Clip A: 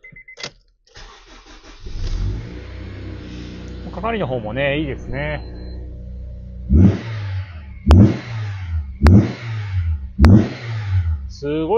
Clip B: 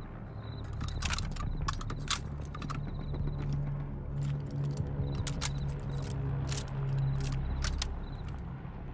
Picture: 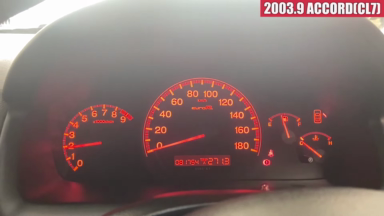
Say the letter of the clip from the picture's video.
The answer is A